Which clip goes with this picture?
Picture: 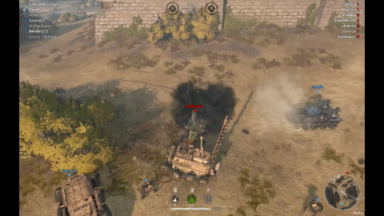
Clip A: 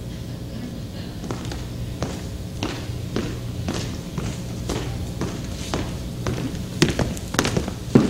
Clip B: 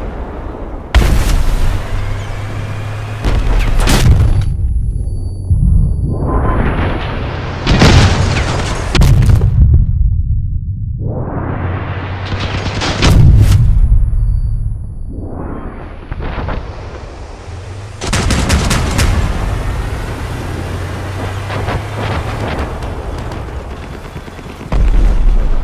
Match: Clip B